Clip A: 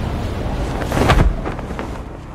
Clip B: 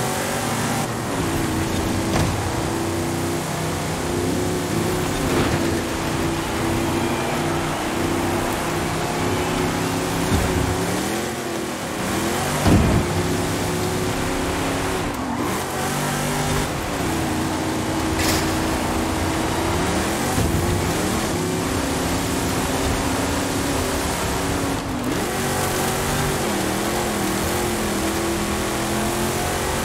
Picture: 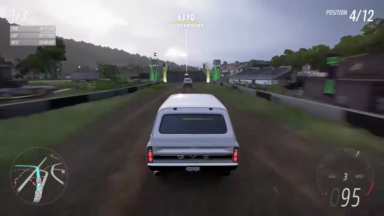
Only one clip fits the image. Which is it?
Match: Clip B